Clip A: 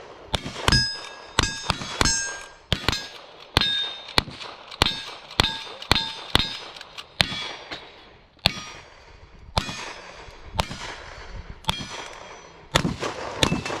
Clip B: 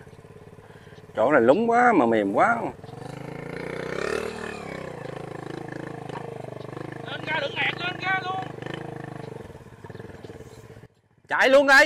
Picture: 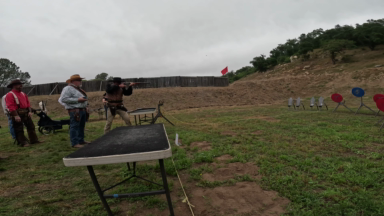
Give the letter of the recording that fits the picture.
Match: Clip A